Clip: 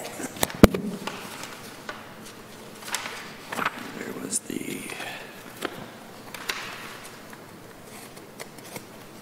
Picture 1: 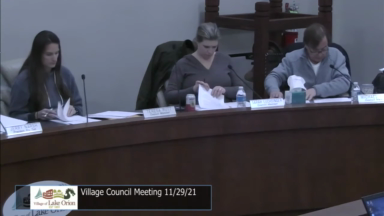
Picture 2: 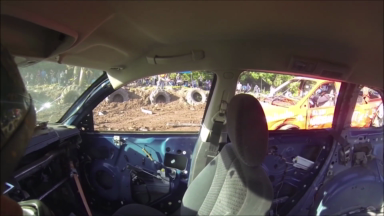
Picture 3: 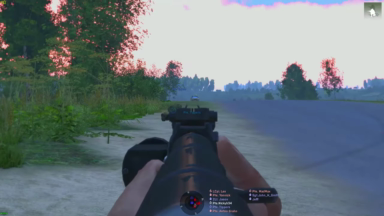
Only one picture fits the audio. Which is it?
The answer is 1